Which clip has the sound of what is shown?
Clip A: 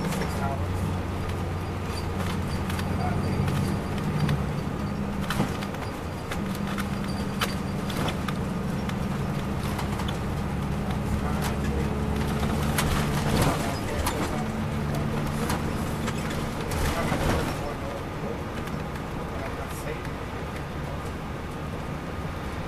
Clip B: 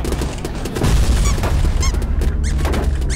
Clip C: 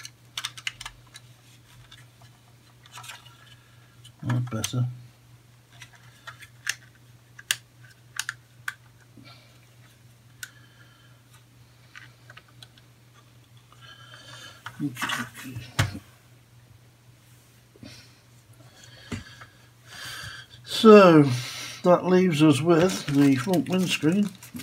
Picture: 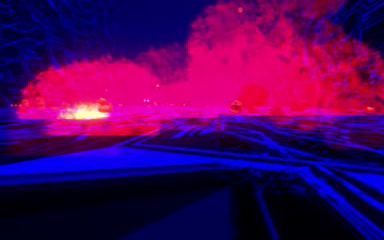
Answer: B